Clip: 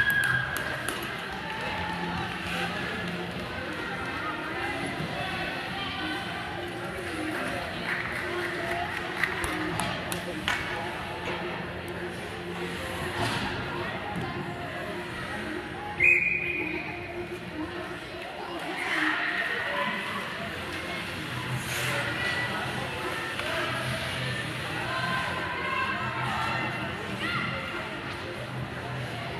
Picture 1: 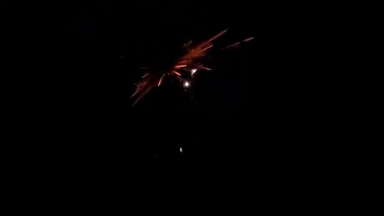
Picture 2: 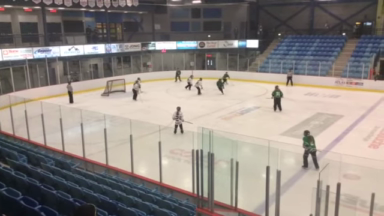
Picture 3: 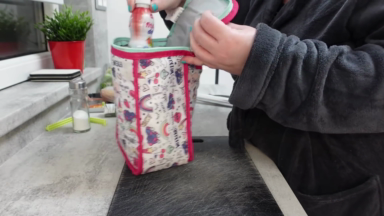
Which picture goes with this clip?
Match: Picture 2